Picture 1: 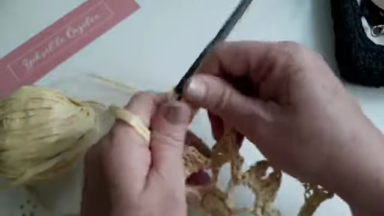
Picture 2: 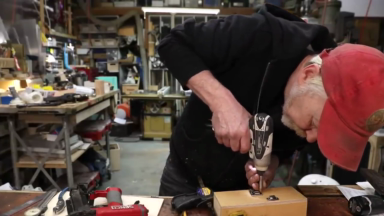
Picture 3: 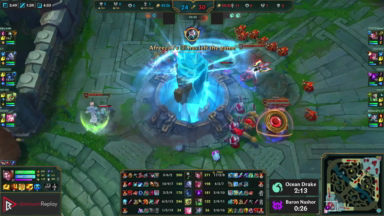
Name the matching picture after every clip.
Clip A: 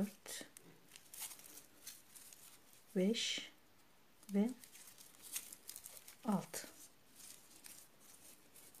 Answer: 1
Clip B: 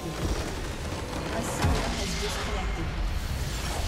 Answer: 3